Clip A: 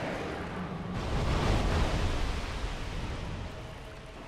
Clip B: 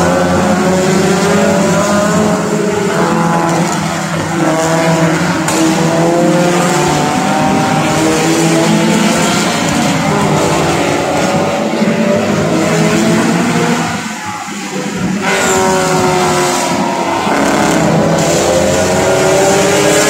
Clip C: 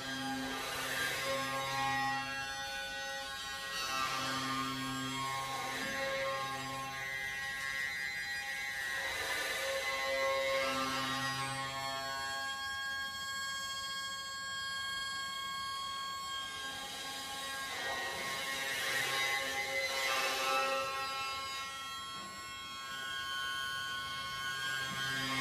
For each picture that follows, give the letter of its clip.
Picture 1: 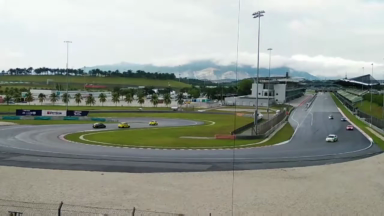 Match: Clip B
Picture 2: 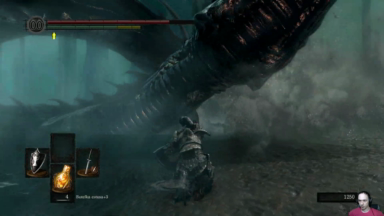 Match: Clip A